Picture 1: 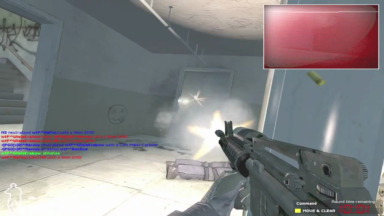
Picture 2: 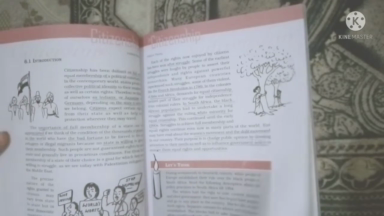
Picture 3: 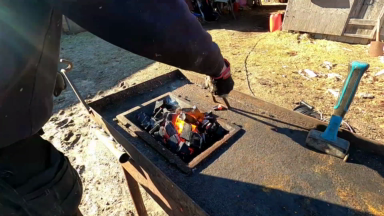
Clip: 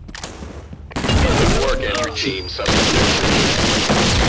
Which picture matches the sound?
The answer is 1